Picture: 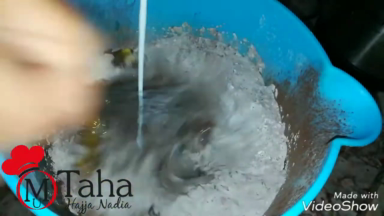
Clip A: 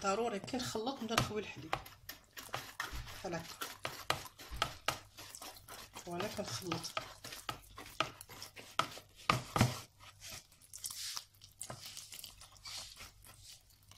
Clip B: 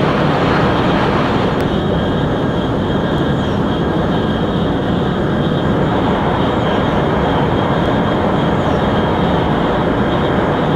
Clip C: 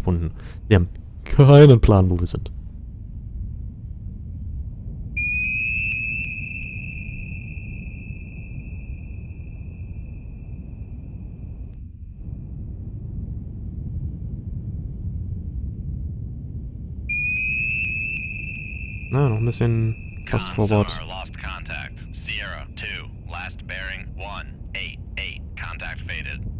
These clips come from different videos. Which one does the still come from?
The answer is A